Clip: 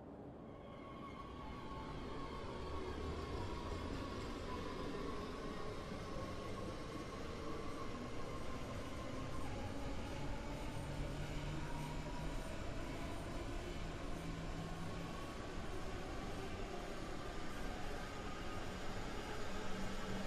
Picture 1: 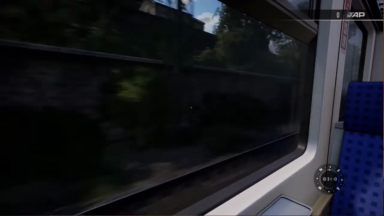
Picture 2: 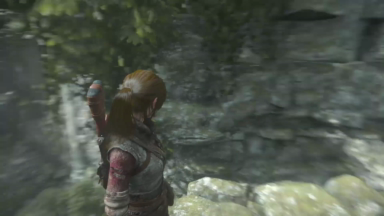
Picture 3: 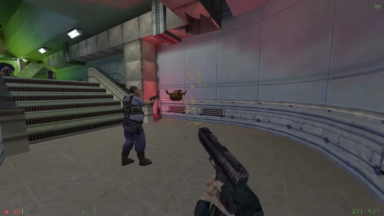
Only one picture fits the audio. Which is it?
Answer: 1